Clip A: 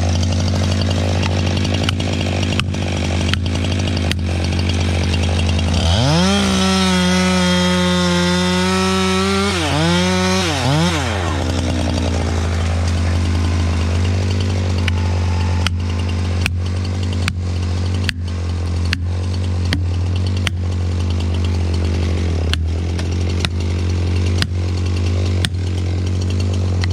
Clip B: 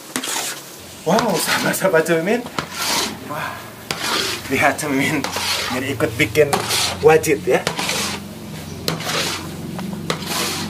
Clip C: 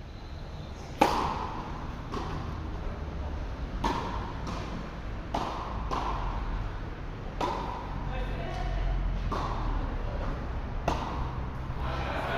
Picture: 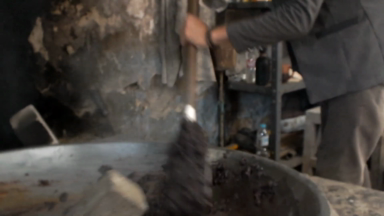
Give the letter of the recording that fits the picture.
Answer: B